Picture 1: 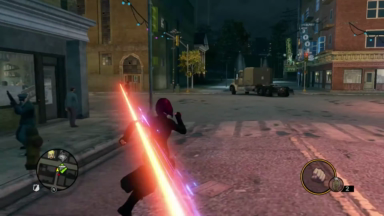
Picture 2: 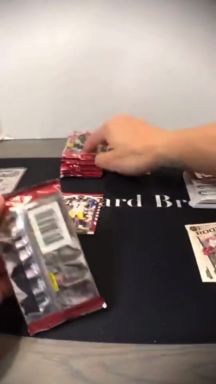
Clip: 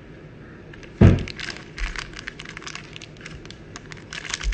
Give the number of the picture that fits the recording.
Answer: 2